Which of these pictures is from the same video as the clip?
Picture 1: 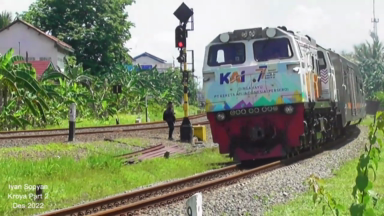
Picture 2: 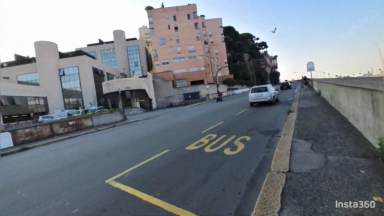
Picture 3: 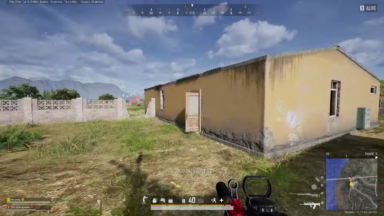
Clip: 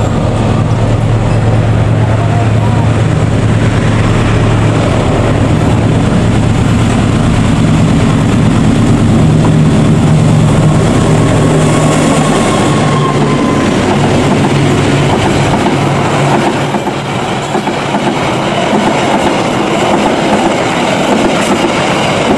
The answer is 1